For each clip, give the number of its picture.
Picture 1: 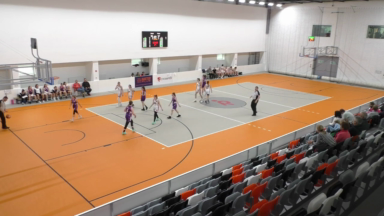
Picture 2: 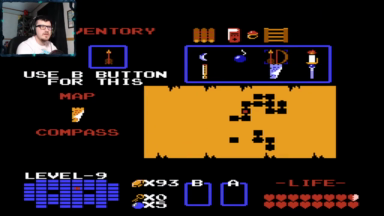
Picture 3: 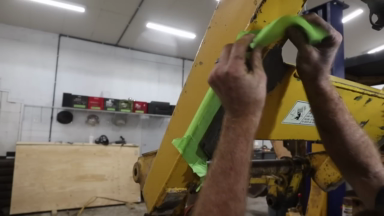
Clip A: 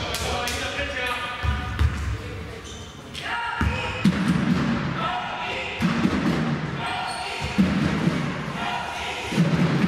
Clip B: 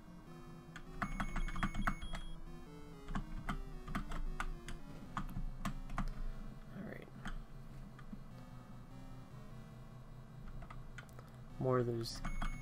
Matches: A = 1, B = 2